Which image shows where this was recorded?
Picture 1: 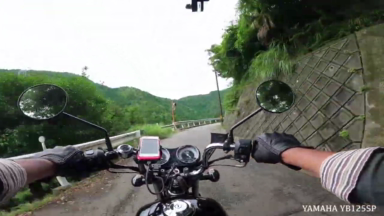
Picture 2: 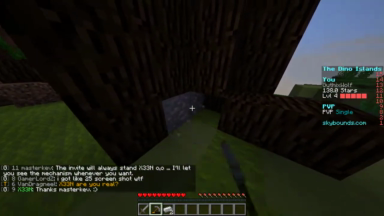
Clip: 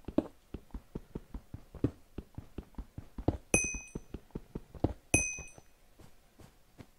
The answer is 2